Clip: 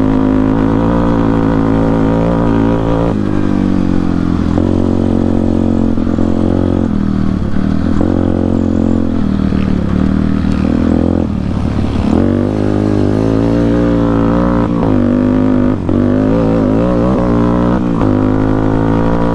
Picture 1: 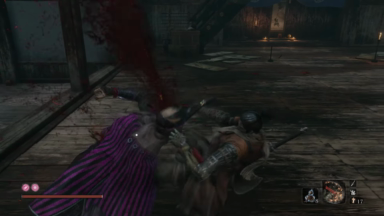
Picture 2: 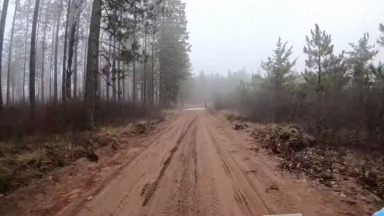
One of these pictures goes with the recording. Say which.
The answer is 2